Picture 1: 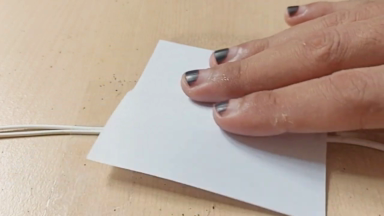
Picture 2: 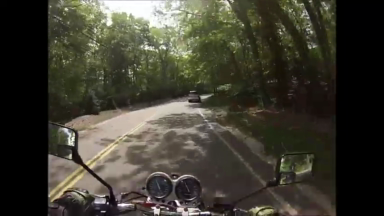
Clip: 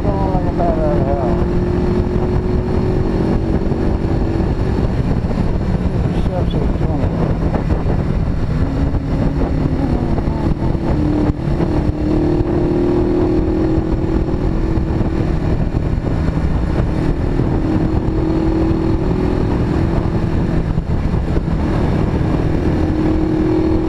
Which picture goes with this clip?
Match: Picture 2